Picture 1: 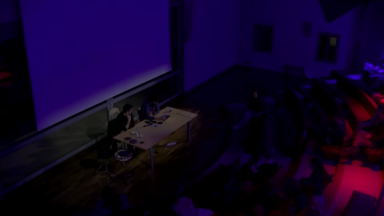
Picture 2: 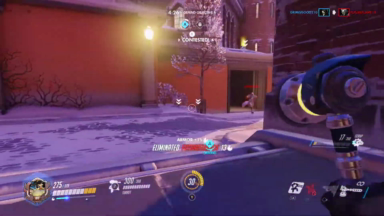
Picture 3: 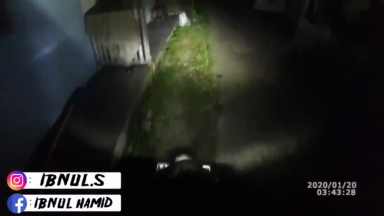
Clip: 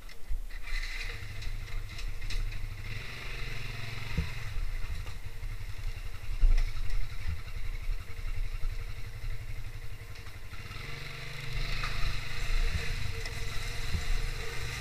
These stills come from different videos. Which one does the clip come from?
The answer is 3